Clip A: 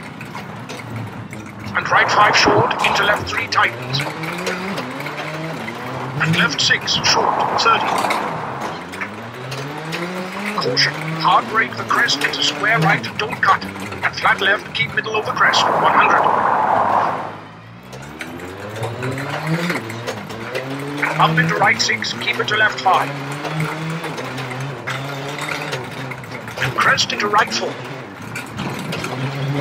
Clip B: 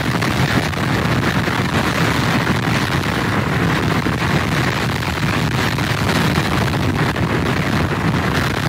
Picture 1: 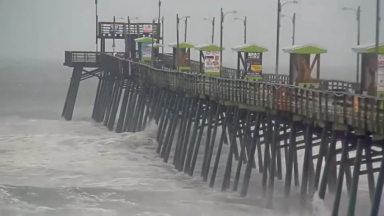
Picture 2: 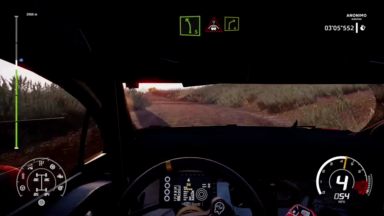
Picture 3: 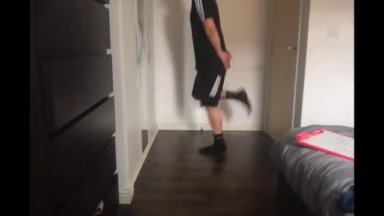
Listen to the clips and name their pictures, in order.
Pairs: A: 2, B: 1